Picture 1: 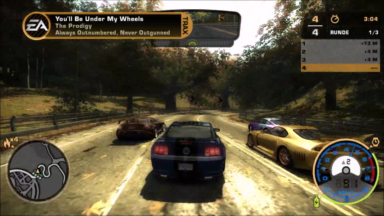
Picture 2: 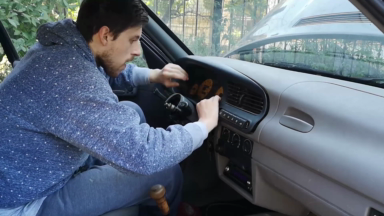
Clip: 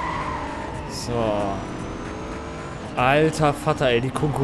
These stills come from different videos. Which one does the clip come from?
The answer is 1